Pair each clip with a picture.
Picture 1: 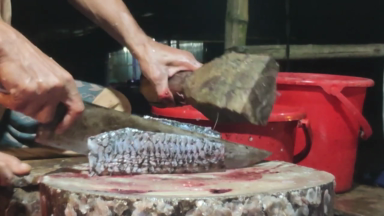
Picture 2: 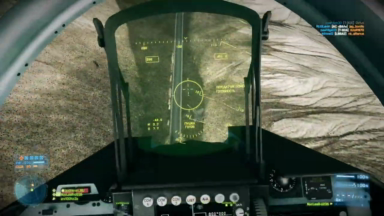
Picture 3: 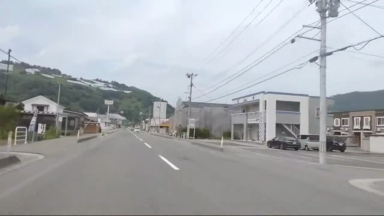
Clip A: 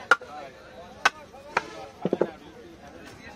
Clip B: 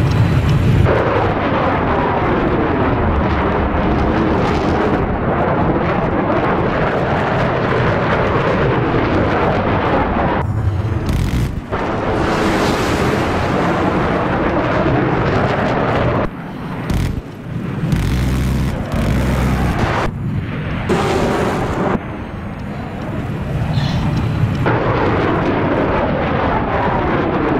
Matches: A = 1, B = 2